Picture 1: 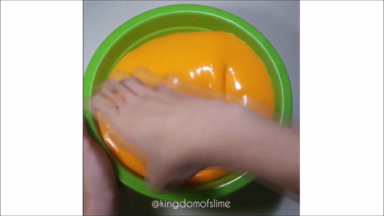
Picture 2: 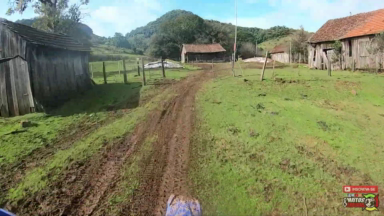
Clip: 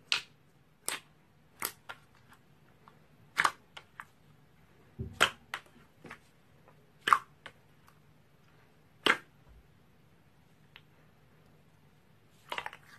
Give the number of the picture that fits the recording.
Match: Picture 1